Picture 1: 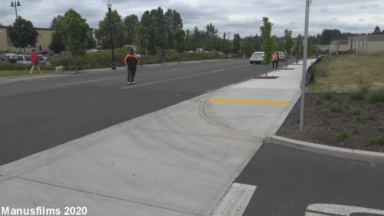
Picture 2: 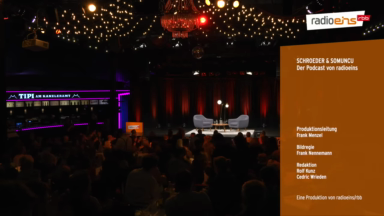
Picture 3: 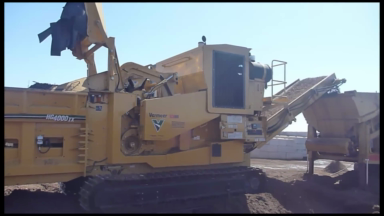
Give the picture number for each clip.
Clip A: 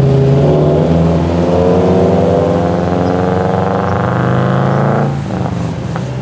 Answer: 1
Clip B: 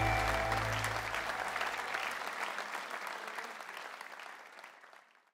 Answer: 2